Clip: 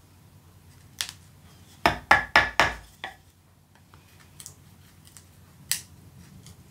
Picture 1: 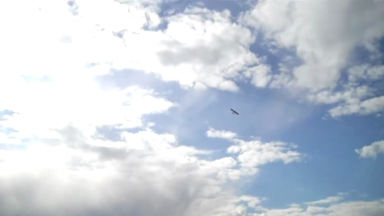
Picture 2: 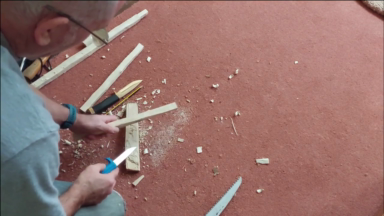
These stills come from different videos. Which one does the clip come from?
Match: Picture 2